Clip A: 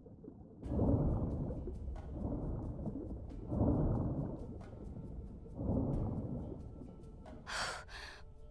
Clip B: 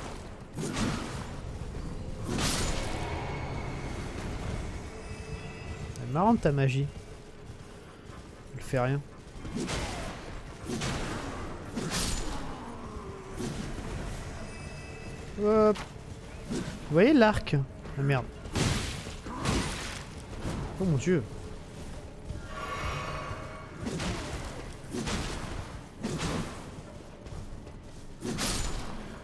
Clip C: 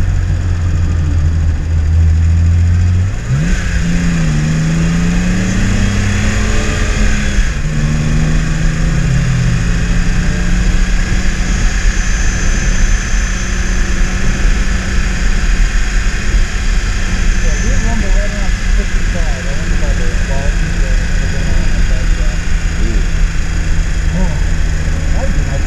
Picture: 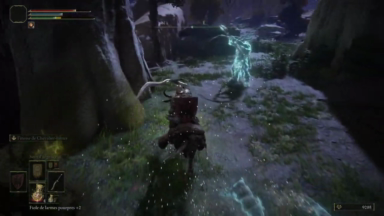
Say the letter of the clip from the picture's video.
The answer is B